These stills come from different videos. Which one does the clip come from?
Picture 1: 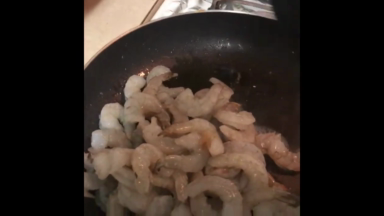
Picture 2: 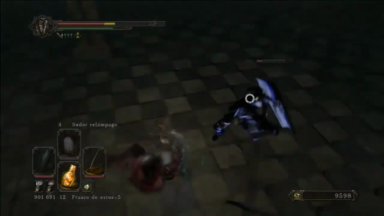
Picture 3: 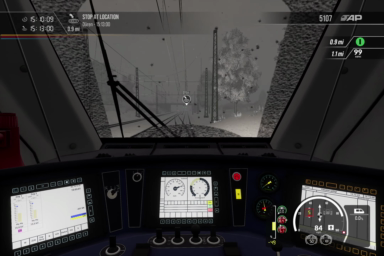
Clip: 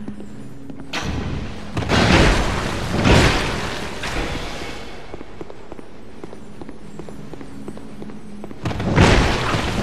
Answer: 2